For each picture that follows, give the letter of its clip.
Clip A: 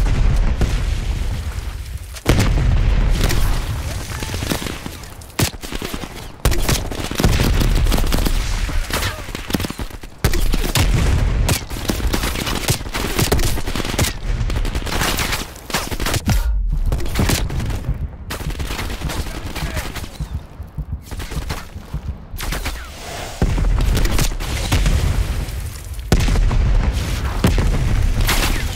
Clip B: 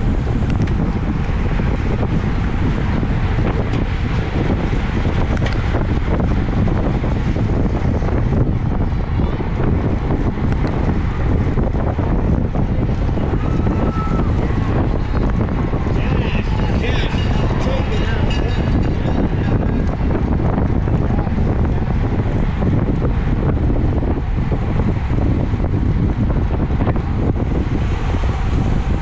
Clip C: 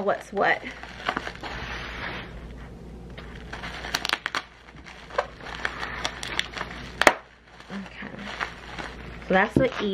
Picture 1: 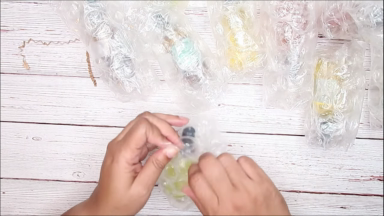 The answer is C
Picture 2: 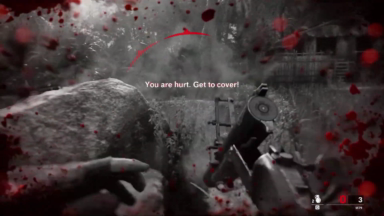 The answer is A